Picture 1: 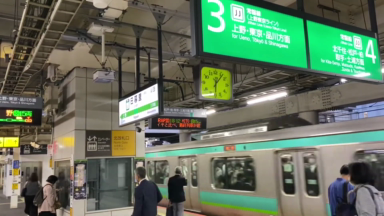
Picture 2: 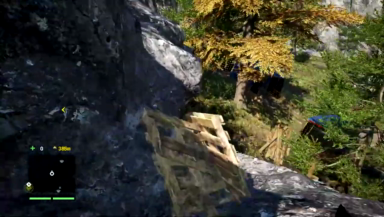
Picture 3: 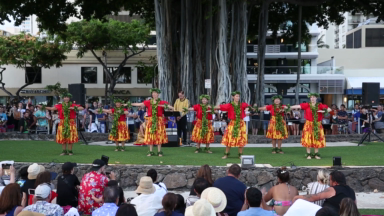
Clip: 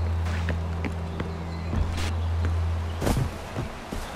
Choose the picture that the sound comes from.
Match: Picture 2